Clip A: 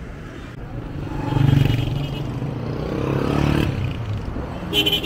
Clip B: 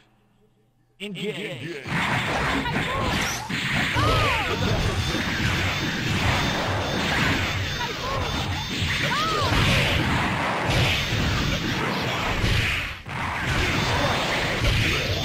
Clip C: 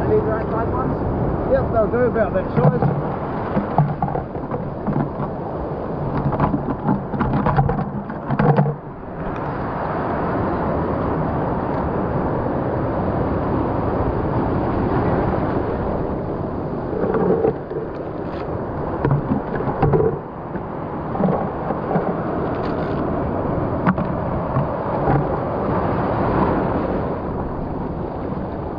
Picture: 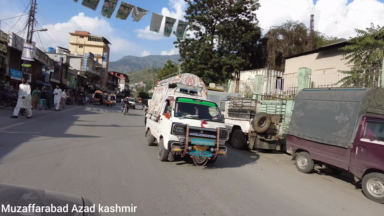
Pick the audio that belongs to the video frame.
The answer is A